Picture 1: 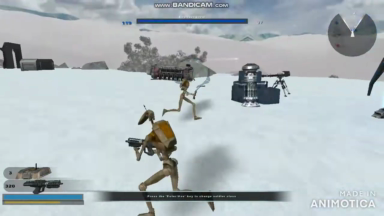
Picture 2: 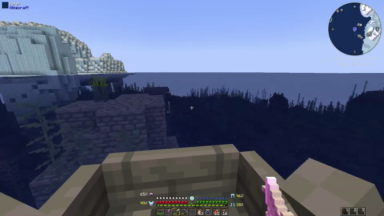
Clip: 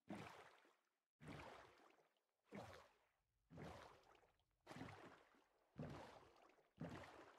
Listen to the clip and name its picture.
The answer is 2